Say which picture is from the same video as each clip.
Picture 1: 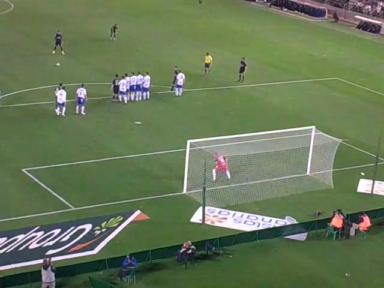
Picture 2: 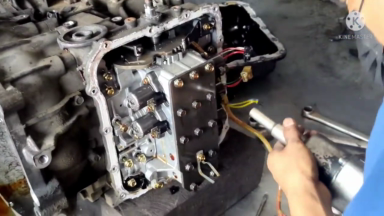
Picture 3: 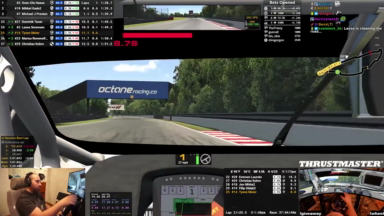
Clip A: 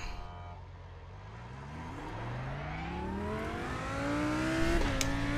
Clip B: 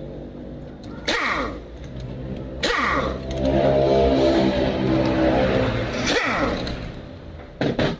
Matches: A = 3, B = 2